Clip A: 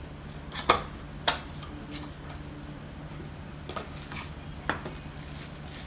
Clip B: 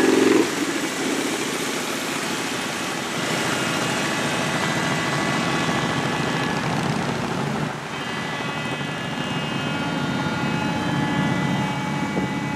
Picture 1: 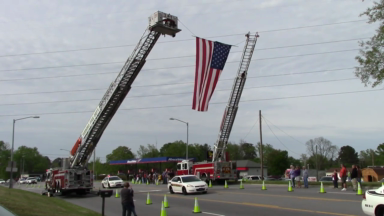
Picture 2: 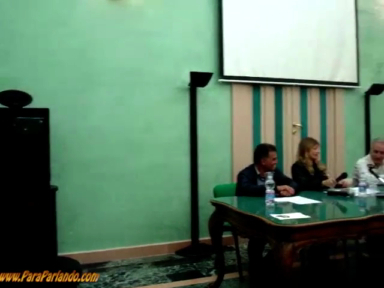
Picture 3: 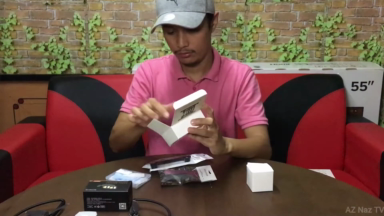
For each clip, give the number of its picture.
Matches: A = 3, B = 1